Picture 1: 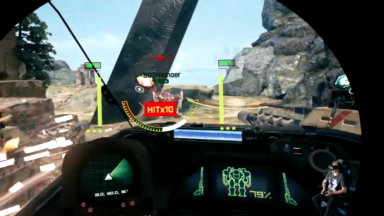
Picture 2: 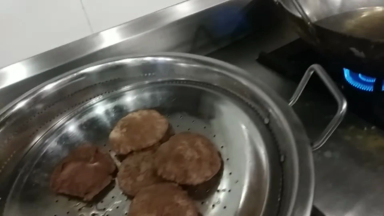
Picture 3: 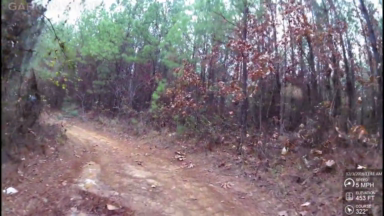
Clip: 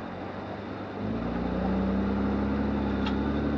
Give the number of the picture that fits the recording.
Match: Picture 3